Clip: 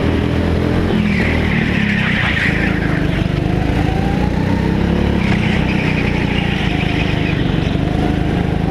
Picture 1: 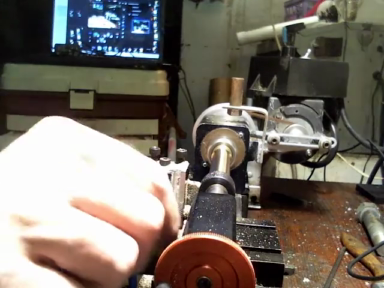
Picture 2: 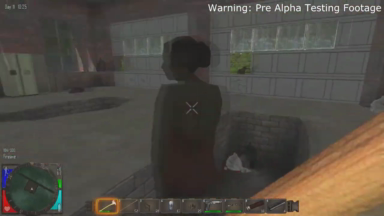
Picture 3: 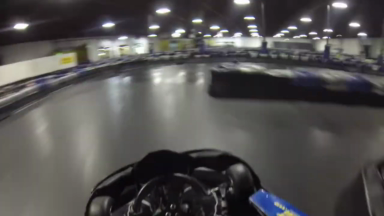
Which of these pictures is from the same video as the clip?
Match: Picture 3